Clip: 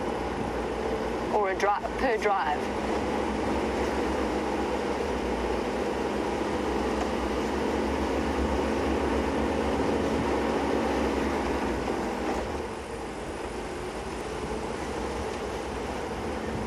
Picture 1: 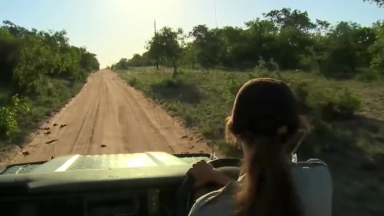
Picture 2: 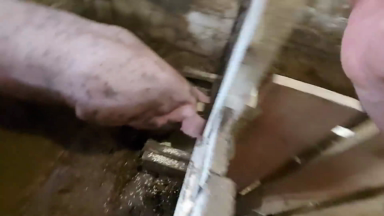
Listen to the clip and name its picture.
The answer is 1